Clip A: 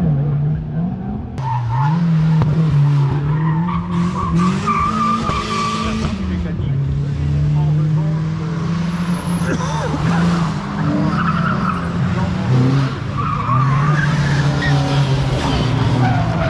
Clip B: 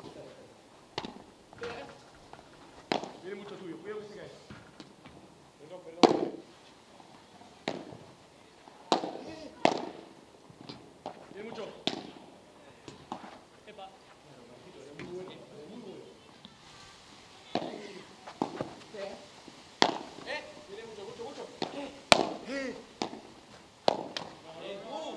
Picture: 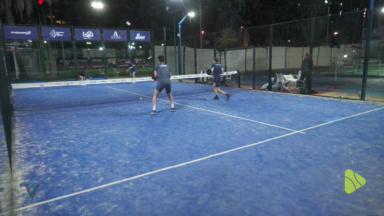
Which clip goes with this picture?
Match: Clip B